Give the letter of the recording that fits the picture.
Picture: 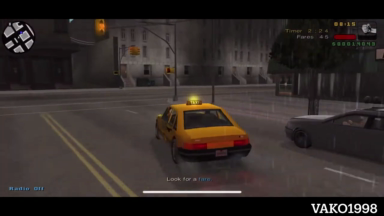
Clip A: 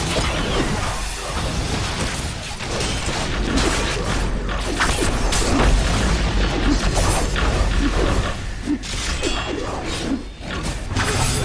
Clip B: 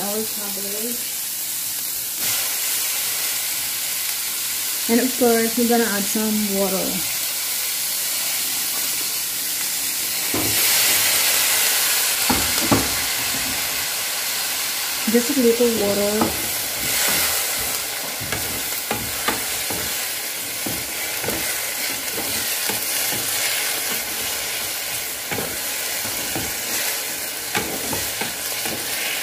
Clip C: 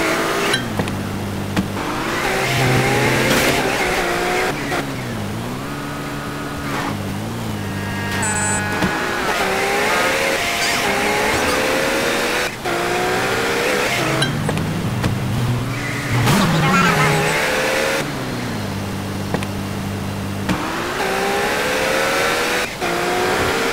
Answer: C